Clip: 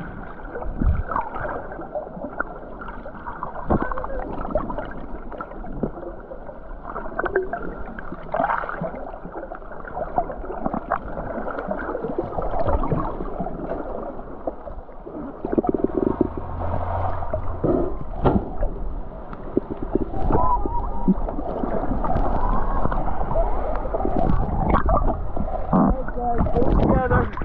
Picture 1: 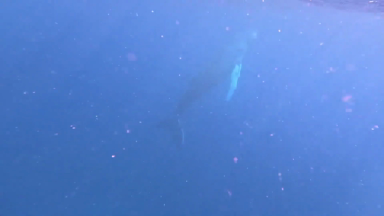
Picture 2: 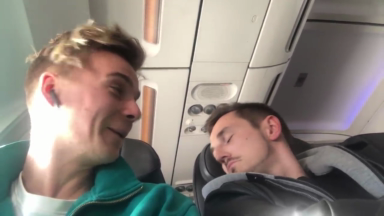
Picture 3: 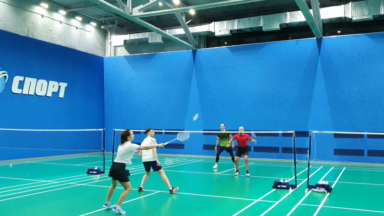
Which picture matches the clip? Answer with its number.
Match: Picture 1